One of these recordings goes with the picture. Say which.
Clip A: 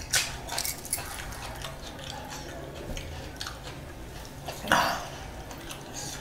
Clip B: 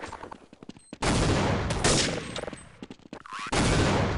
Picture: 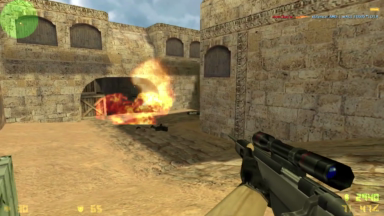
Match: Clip B